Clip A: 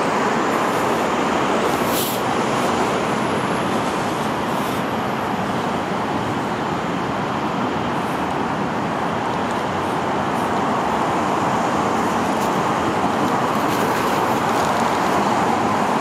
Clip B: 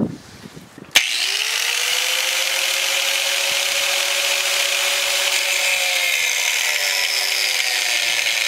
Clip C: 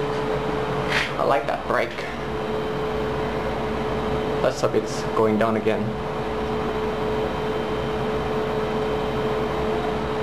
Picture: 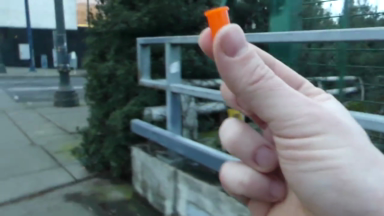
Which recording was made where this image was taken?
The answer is A